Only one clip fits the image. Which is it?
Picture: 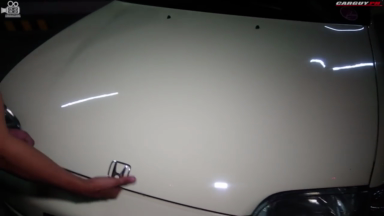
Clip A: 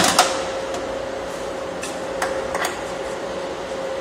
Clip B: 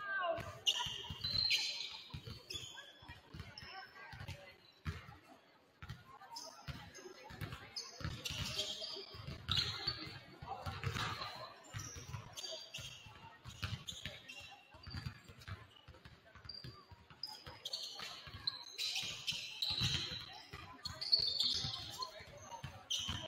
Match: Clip A